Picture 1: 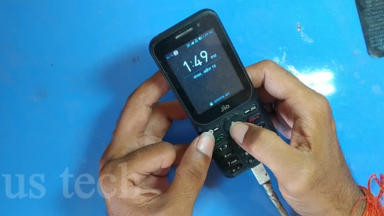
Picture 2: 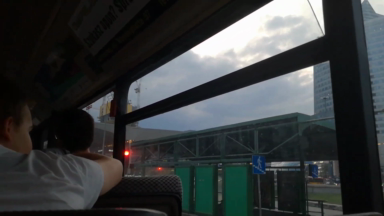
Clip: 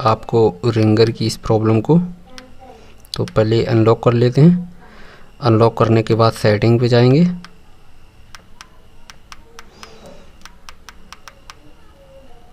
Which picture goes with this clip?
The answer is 1